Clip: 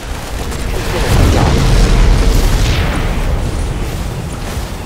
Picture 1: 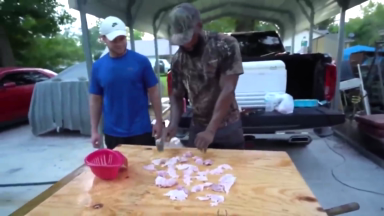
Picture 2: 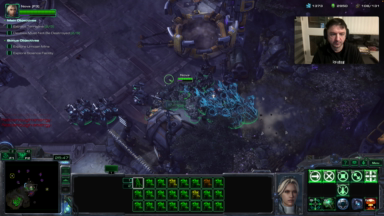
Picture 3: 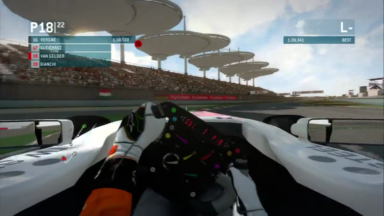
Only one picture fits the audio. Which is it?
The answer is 2